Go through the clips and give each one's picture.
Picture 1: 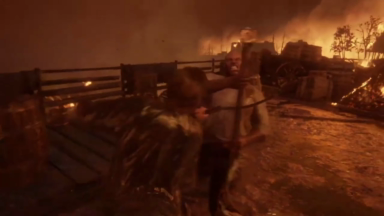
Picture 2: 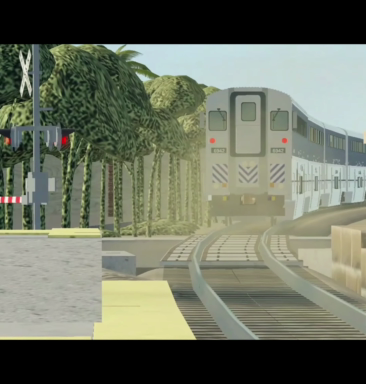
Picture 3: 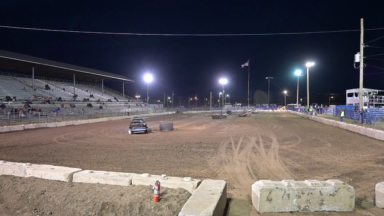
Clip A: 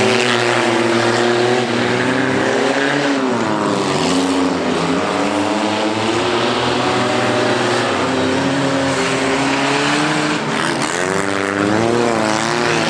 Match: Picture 3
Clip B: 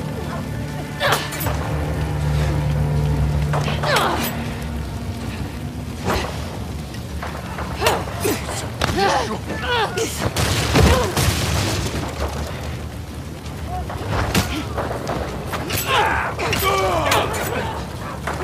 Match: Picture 1